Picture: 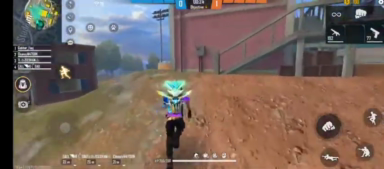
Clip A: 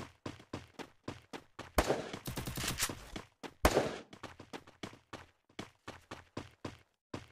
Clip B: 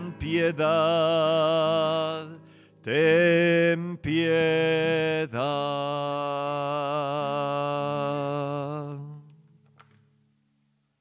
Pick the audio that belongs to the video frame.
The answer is A